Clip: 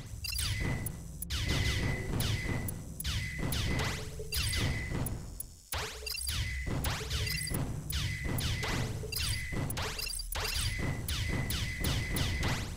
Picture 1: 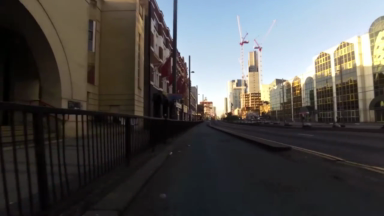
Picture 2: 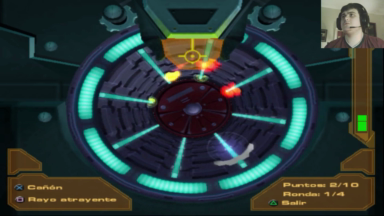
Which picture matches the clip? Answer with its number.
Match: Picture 2